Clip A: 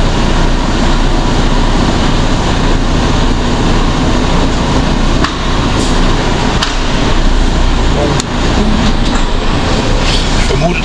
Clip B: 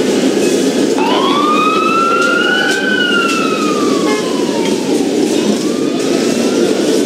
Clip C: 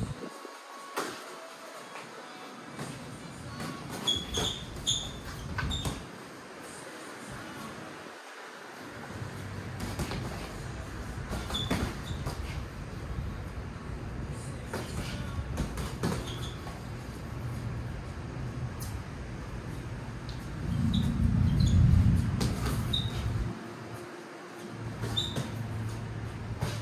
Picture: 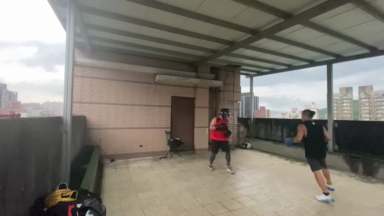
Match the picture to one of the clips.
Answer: C